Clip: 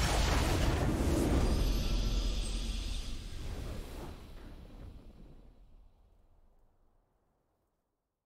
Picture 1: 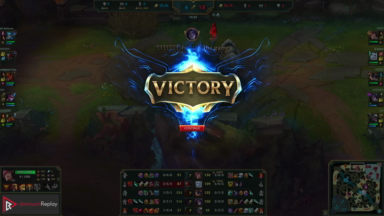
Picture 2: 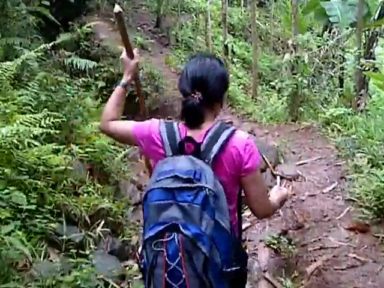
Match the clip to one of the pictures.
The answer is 1